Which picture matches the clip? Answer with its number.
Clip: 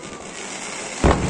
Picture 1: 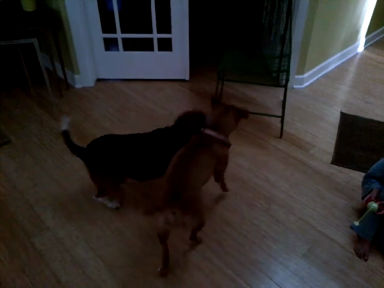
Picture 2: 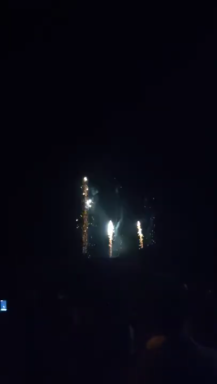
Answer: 2